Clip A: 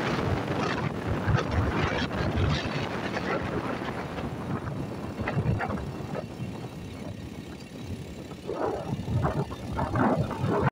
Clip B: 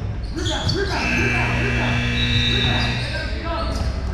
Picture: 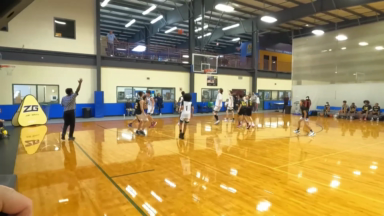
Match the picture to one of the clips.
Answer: B